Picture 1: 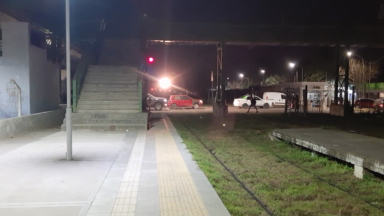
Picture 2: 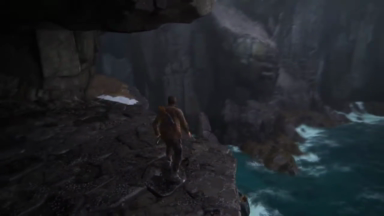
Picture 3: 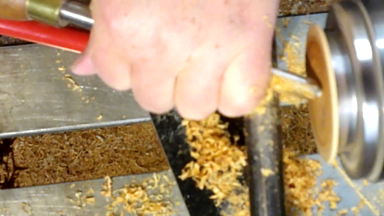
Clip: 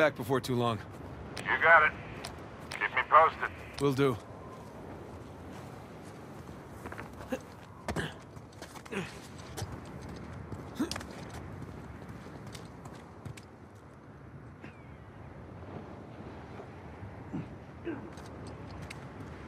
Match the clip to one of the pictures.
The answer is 2